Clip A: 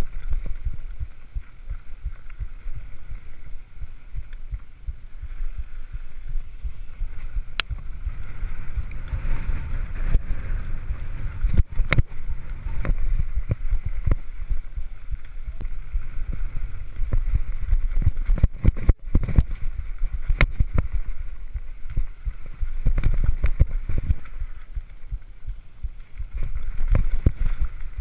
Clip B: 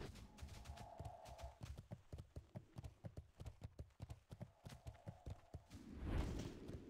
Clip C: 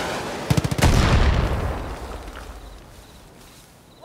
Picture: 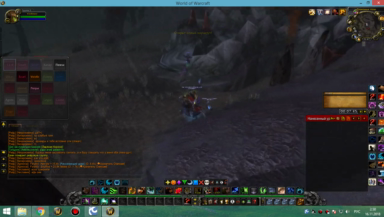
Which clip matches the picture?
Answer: B